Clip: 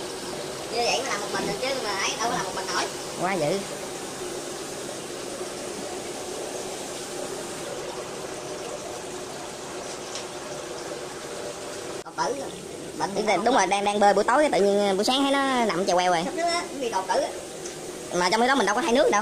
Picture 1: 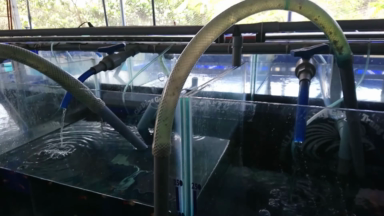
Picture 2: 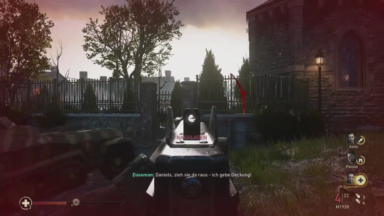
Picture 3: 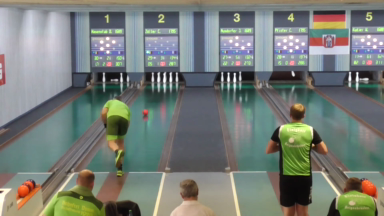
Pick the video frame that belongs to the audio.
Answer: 1